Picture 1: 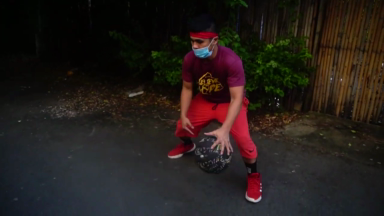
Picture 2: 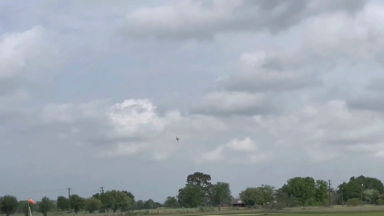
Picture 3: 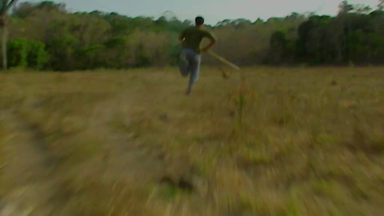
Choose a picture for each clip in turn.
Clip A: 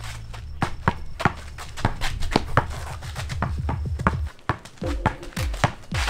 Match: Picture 1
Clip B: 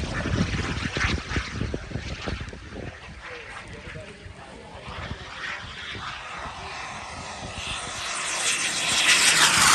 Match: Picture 2